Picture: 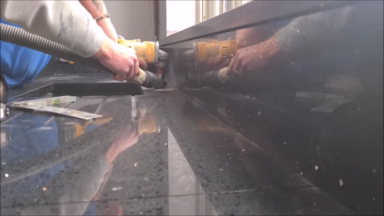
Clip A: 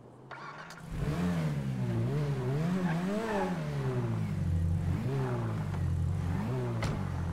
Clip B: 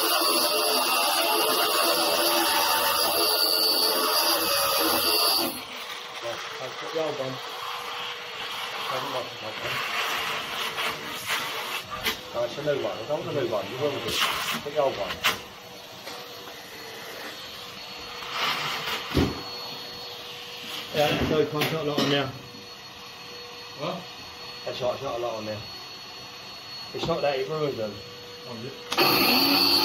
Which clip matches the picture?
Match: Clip B